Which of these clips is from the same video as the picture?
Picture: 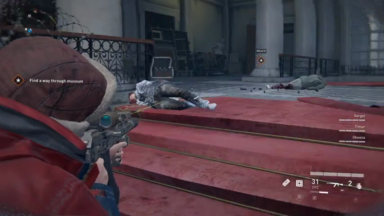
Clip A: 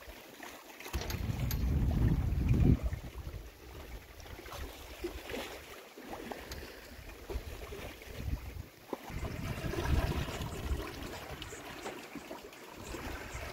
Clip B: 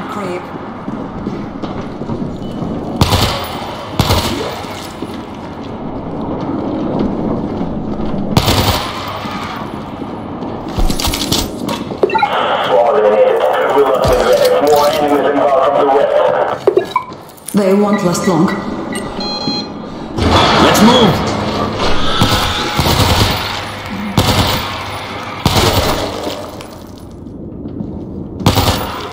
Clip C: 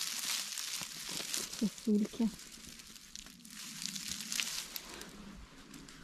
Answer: B